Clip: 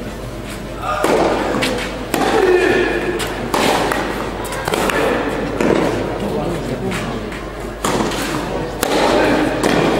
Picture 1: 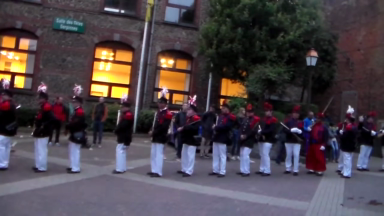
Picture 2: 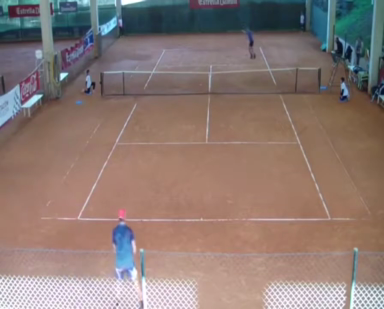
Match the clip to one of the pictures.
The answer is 2